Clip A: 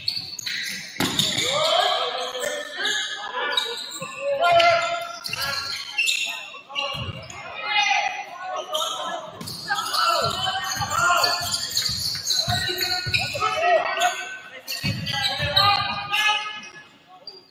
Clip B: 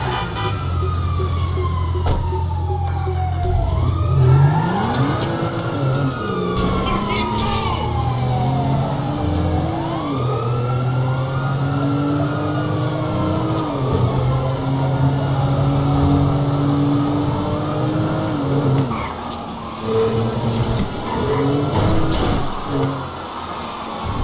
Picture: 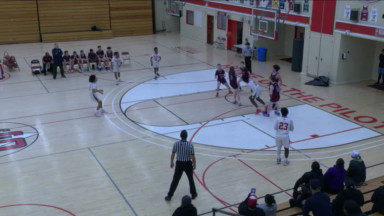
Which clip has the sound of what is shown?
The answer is A